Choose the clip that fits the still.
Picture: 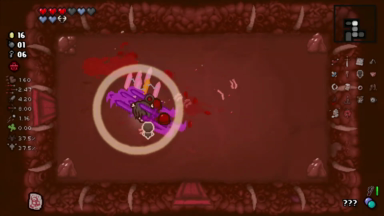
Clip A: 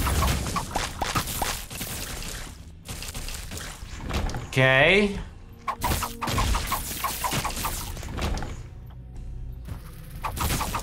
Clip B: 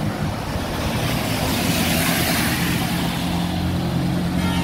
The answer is A